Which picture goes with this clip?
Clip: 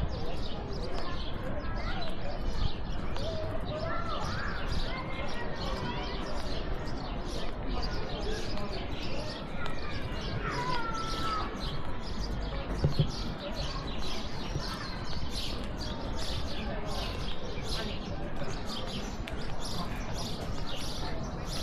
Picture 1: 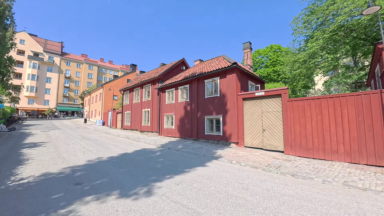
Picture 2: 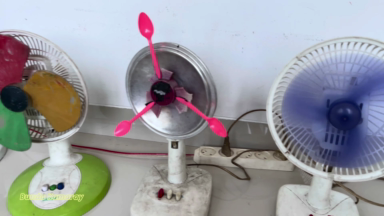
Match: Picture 1